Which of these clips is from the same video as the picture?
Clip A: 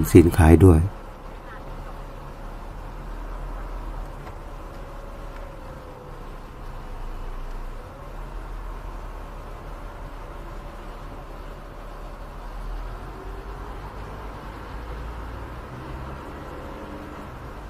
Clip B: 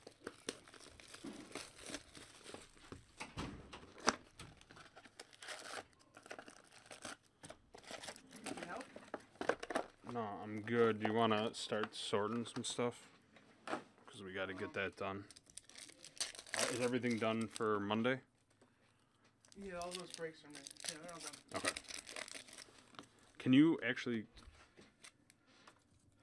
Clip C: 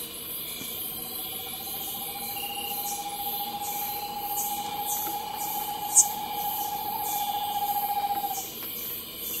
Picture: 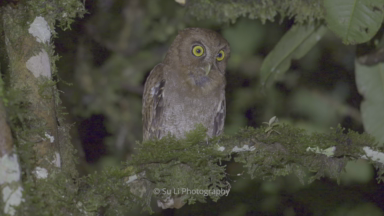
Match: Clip C